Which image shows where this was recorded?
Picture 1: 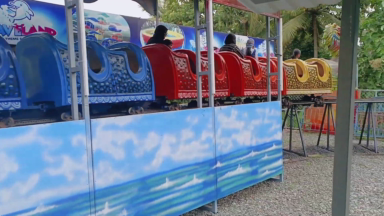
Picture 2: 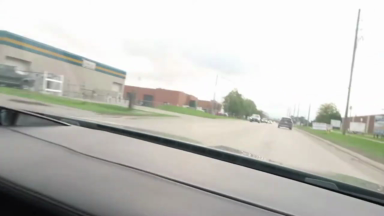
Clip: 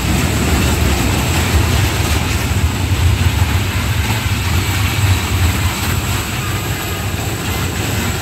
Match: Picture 1